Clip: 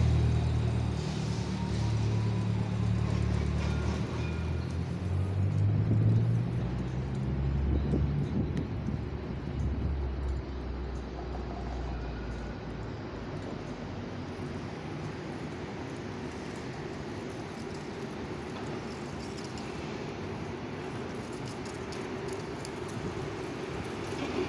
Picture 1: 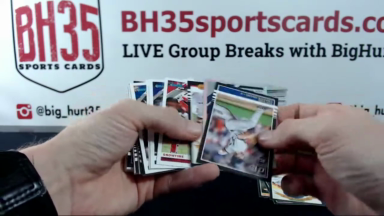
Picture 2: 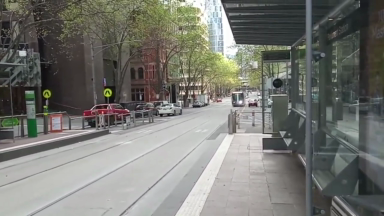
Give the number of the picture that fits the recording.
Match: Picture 2